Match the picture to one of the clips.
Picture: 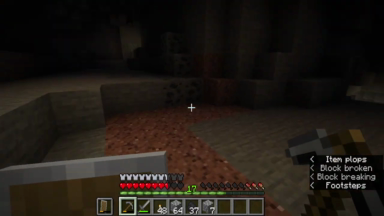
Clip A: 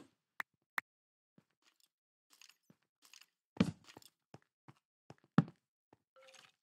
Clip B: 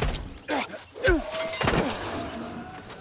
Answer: A